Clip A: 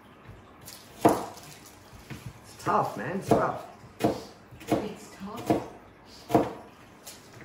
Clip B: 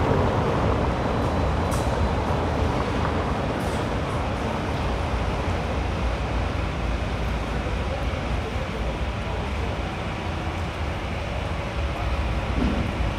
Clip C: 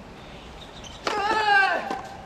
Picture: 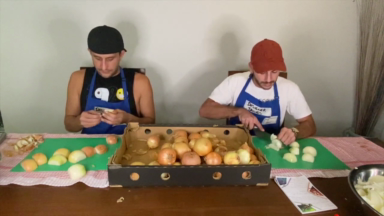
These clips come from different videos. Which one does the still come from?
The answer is A